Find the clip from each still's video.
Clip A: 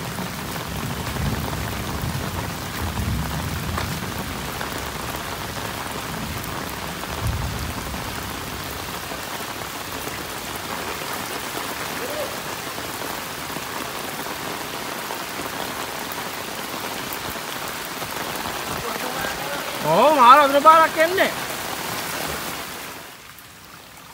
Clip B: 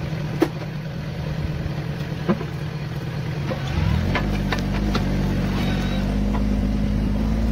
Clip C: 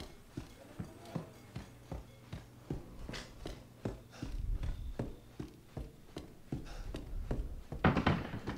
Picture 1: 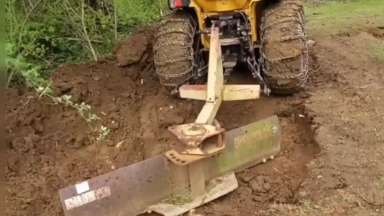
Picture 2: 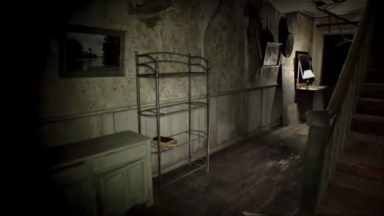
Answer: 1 B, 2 C